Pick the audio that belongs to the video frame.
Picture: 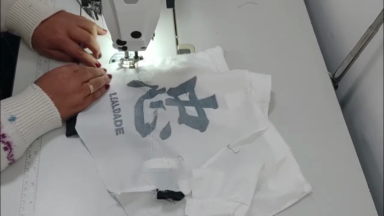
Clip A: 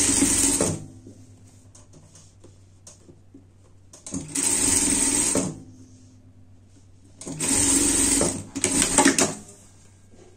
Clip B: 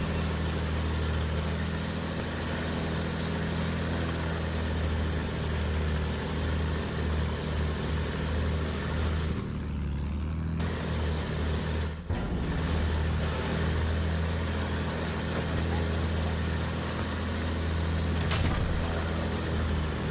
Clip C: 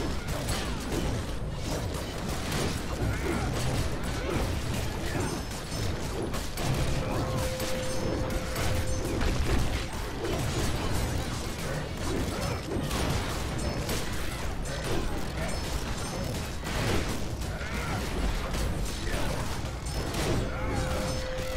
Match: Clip A